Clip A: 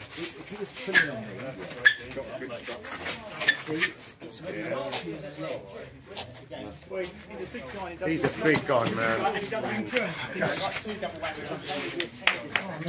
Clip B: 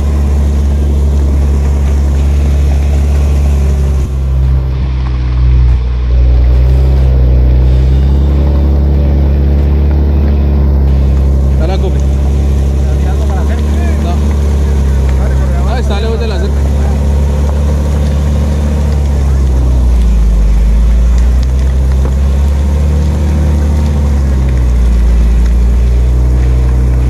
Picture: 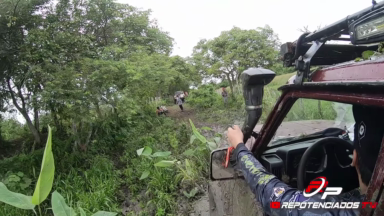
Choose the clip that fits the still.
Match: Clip B